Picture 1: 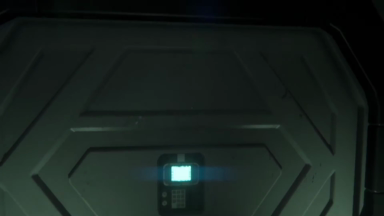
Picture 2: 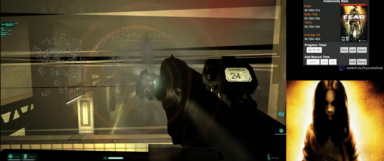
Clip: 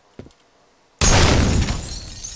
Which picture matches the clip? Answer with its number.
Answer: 2